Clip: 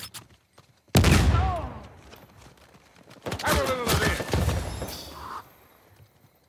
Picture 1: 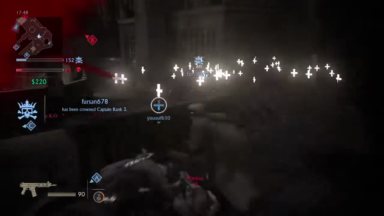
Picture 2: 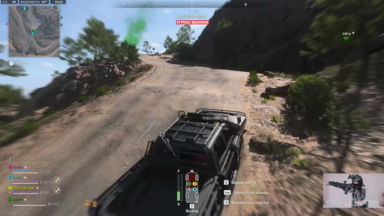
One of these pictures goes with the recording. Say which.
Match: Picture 1